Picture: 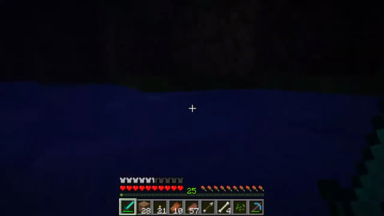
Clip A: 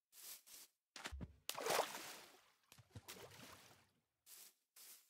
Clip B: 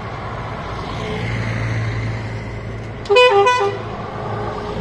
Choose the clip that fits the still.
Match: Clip A